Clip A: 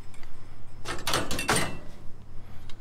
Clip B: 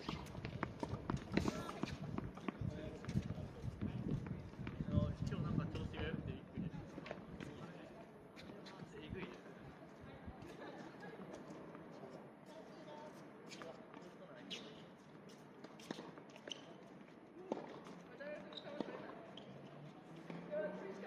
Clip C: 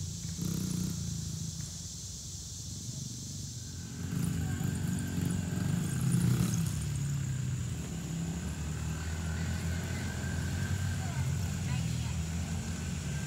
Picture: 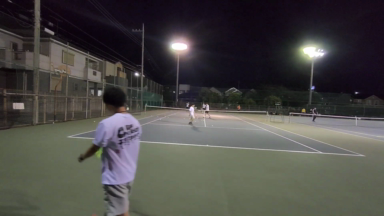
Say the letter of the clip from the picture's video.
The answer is B